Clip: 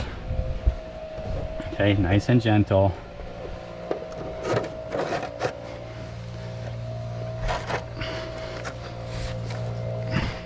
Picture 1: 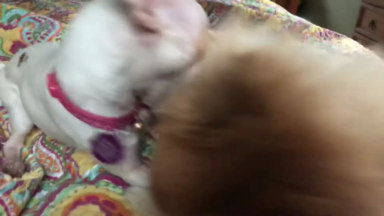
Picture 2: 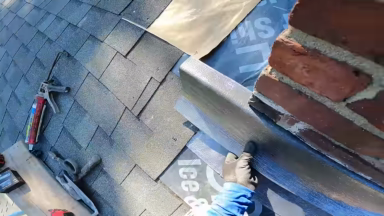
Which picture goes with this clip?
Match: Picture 2